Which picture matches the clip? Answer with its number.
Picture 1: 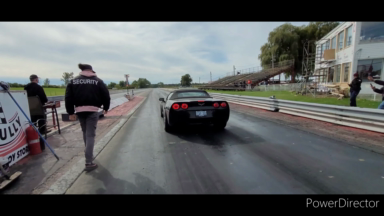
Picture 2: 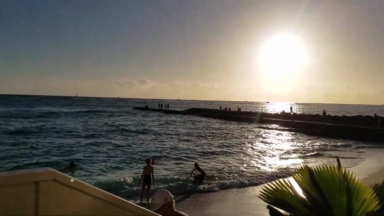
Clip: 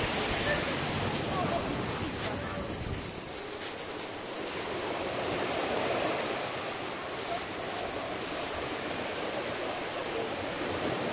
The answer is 2